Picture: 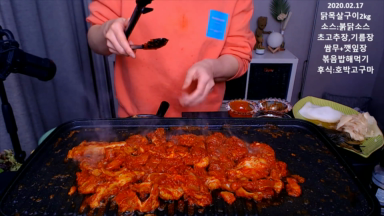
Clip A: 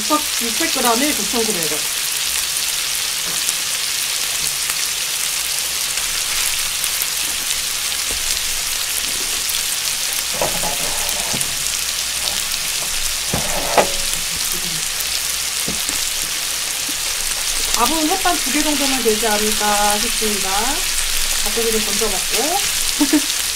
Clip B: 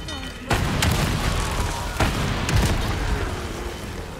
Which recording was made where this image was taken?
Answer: A